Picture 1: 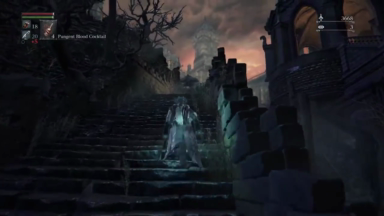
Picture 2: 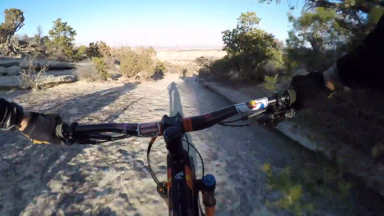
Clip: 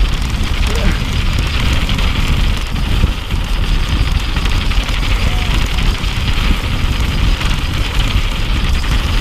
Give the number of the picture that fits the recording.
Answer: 2